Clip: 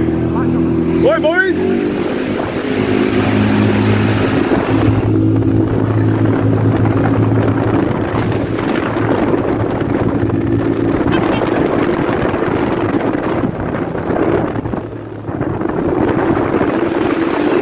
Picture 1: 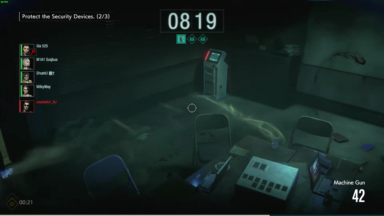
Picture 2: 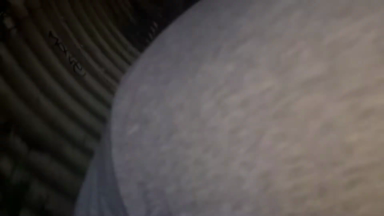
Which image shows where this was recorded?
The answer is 2